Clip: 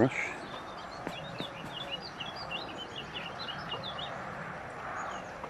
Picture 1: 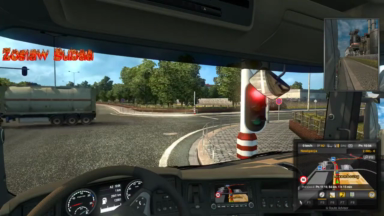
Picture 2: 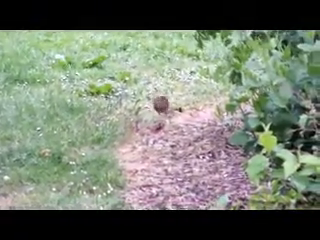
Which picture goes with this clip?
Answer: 2